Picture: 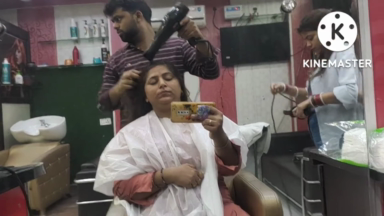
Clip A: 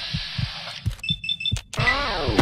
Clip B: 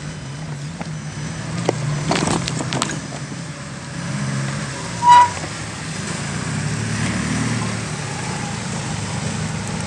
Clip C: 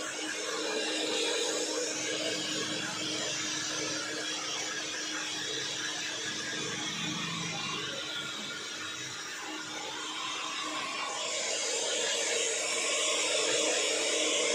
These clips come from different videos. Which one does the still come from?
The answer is C